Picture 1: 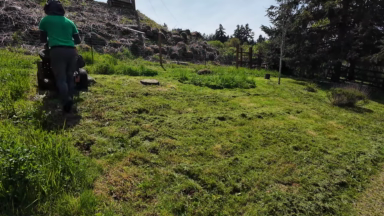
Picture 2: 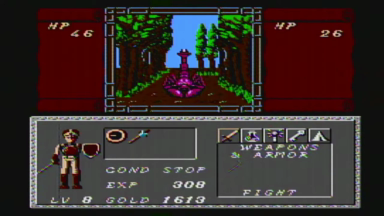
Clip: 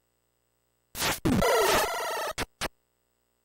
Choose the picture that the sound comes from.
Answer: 2